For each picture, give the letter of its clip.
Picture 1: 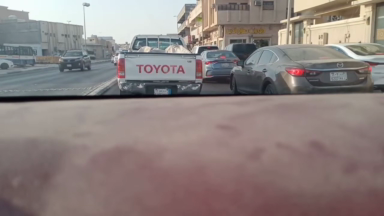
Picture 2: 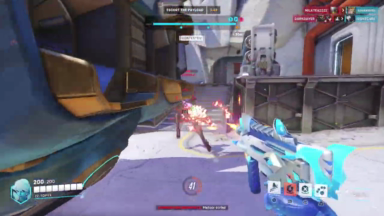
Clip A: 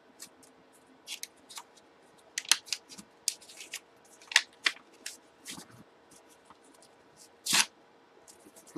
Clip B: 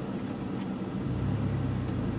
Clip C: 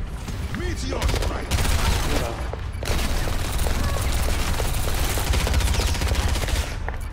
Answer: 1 B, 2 C